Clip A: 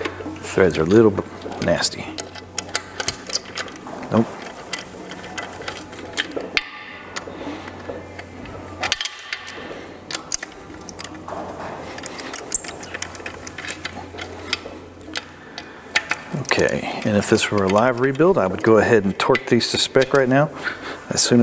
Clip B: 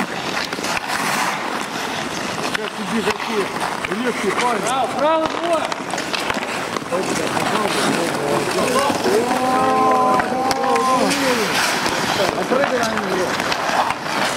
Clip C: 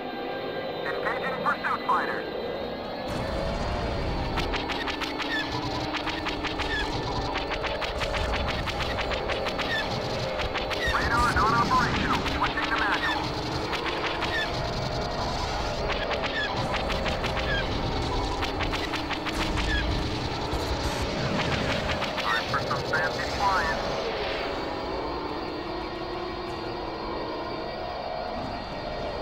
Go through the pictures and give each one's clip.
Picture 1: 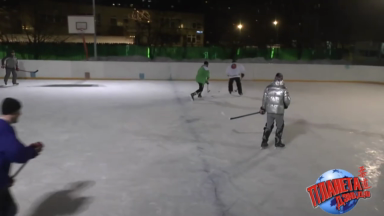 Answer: B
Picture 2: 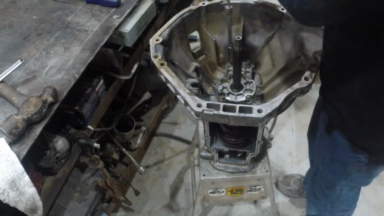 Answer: A